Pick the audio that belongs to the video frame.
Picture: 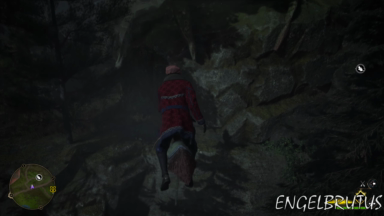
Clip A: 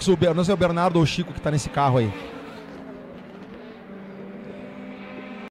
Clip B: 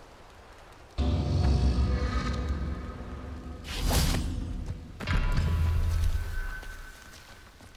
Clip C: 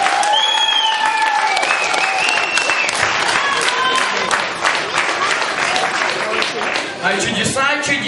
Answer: B